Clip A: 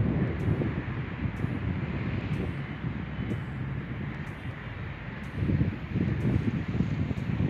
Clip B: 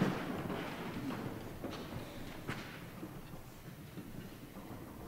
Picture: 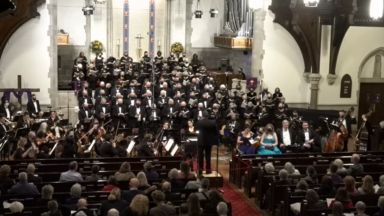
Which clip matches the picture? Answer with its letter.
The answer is B